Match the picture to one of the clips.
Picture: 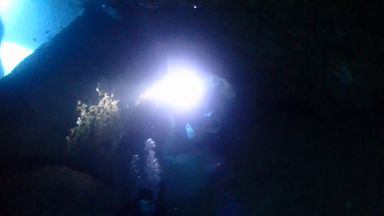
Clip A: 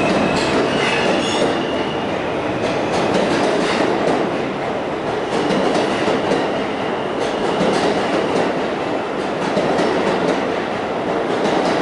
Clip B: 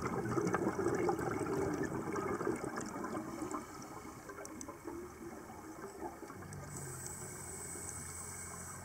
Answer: B